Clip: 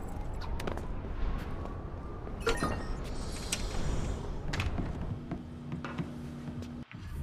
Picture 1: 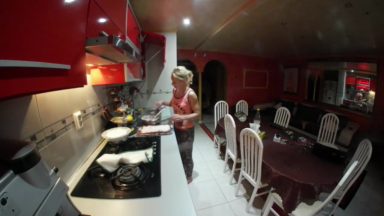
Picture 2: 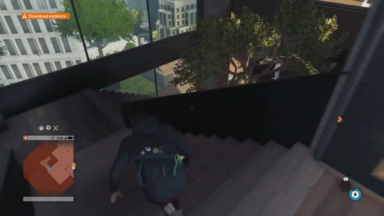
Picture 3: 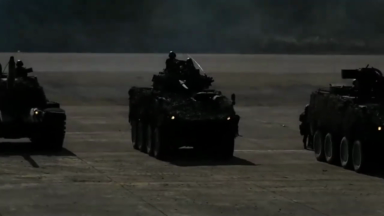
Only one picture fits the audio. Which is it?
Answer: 2